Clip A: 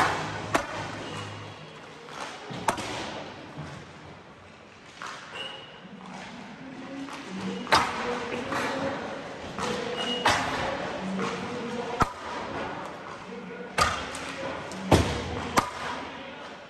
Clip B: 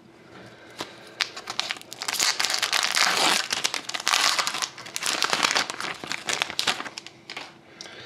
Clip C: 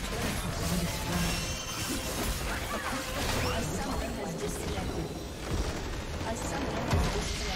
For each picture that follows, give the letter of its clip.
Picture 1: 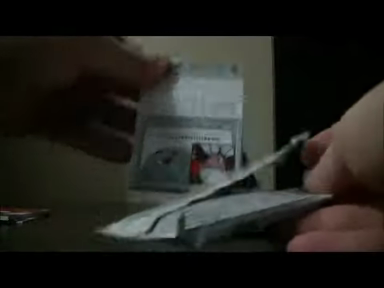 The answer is B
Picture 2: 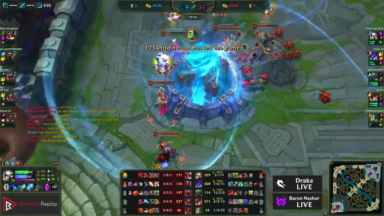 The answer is C